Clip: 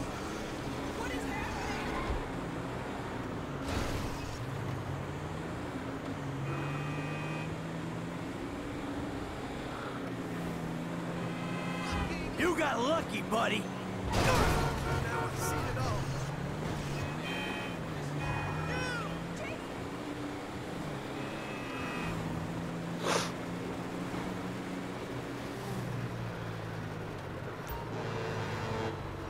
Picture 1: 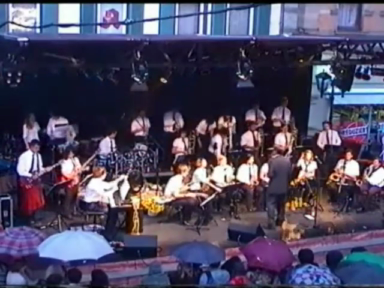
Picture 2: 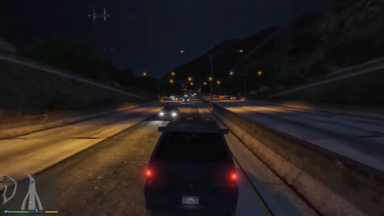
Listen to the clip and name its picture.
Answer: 2